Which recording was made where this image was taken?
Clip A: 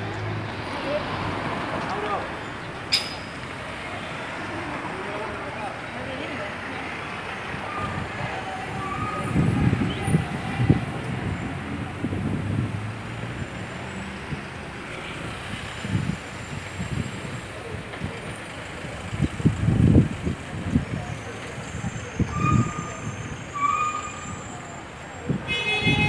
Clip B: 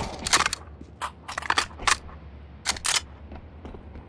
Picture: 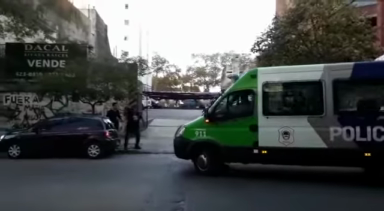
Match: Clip A